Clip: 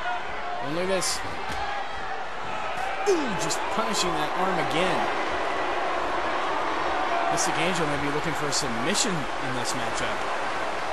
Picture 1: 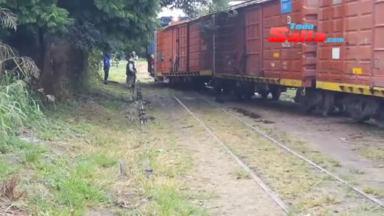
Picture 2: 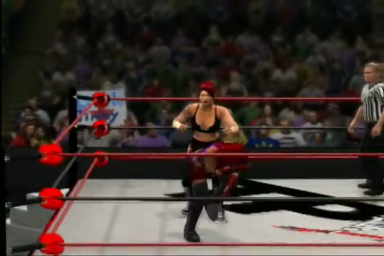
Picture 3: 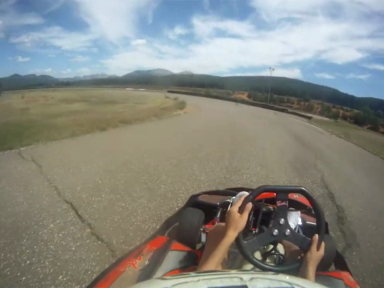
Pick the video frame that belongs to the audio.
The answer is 2